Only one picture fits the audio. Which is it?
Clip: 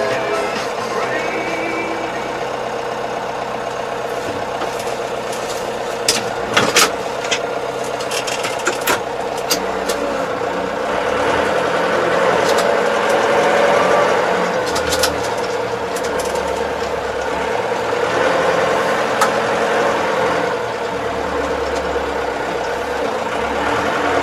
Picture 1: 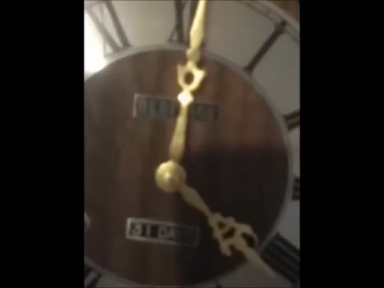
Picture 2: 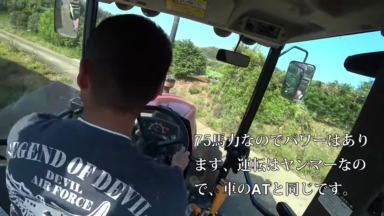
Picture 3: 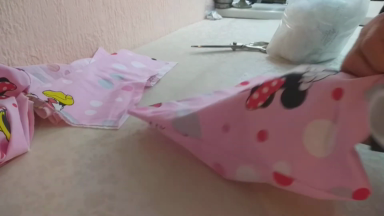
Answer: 2